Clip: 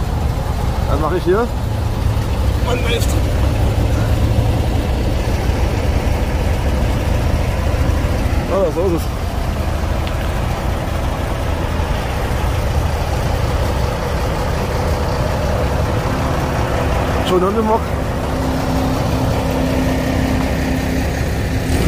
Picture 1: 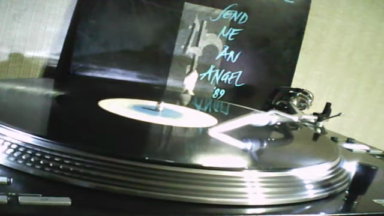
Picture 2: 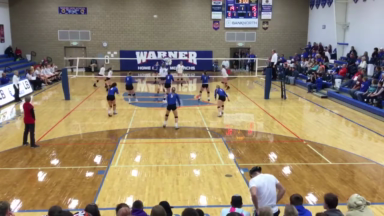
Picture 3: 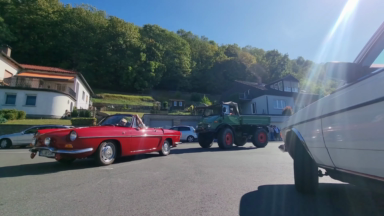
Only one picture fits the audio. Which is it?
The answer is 3